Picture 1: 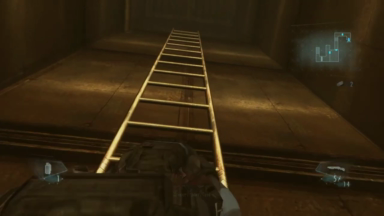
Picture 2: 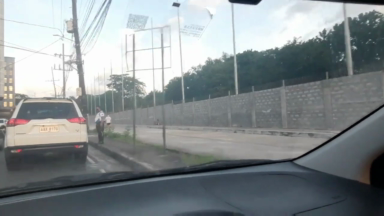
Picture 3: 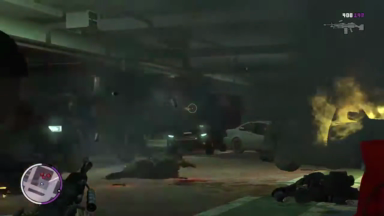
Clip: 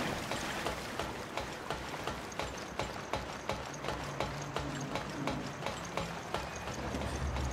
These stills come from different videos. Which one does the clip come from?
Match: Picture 1